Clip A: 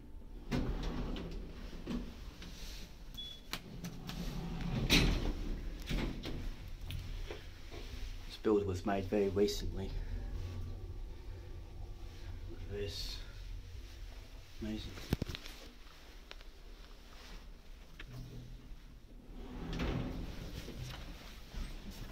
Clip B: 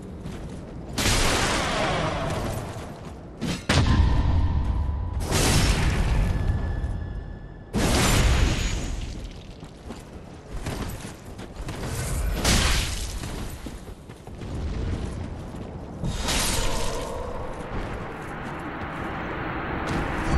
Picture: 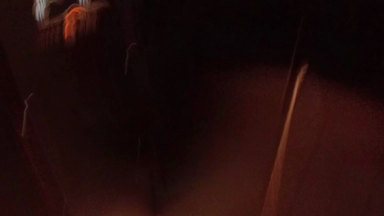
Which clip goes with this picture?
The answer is A